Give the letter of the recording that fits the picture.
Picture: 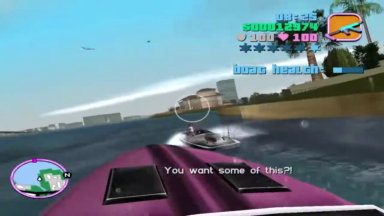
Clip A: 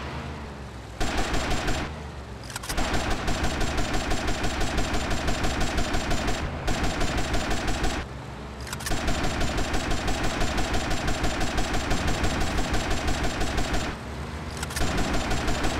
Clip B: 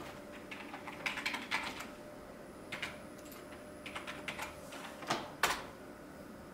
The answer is A